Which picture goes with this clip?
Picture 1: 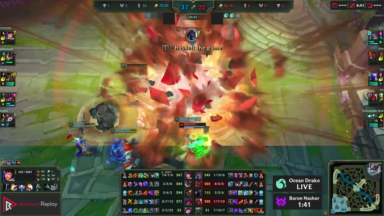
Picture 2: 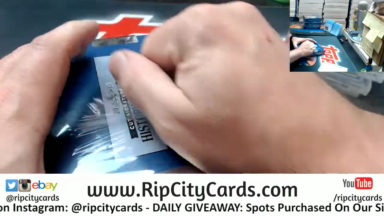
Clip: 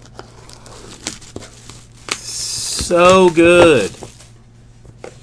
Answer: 2